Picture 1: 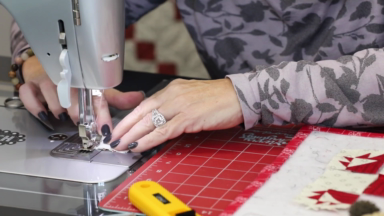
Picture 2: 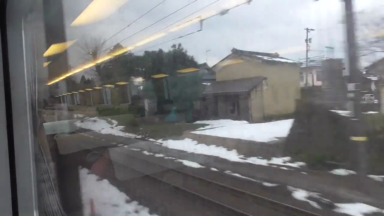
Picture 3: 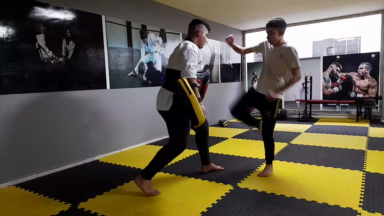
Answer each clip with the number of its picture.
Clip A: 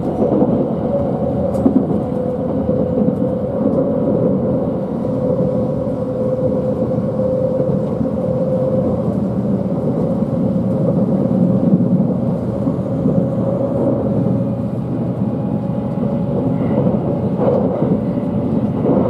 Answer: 2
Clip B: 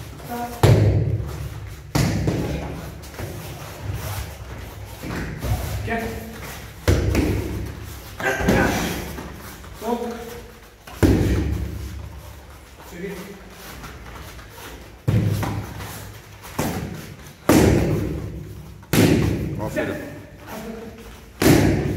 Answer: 3